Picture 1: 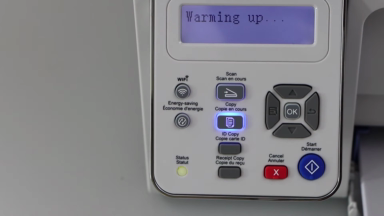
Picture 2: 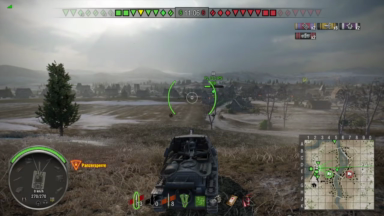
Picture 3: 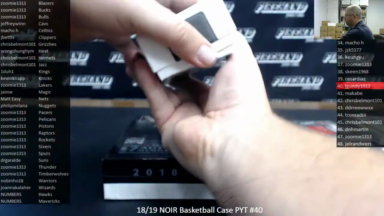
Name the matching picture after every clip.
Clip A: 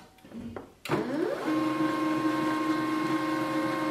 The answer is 1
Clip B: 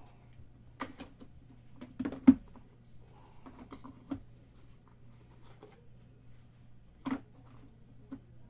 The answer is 3